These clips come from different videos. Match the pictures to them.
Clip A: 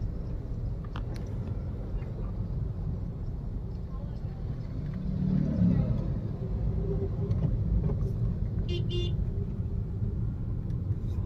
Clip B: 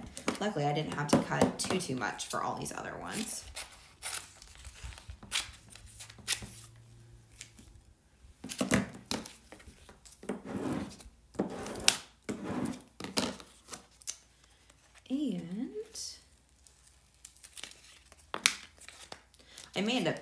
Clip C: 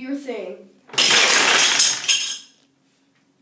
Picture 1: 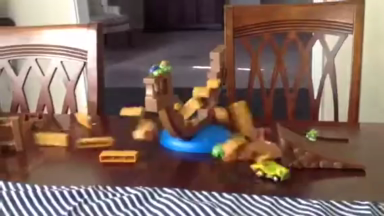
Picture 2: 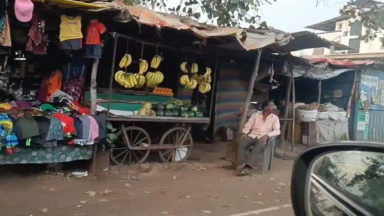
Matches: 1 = C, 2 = A